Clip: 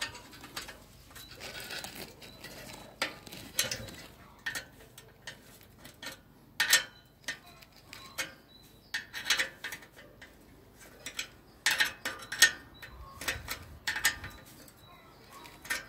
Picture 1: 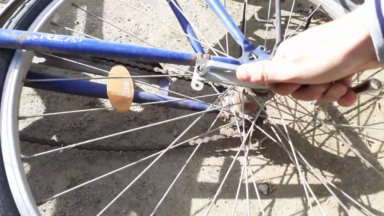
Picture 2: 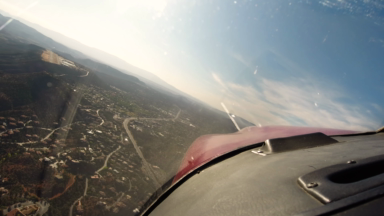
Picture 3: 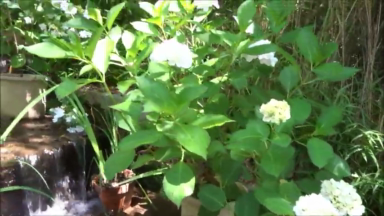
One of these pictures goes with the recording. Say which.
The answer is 1